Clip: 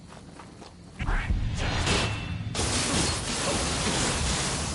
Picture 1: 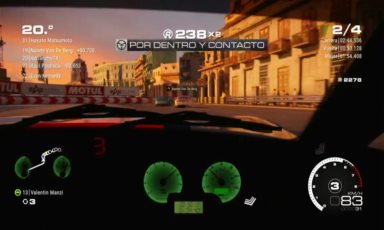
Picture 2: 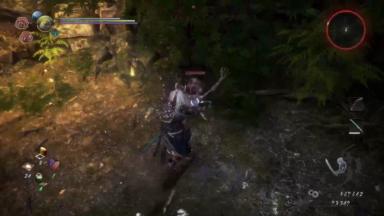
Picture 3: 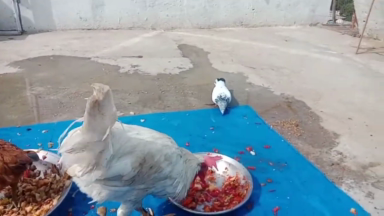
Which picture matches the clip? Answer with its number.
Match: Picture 2